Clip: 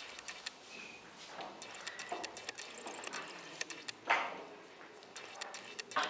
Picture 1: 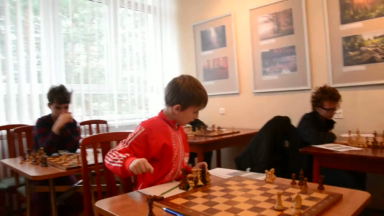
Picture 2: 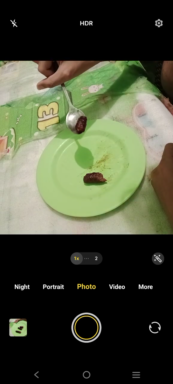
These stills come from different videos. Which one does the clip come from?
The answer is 1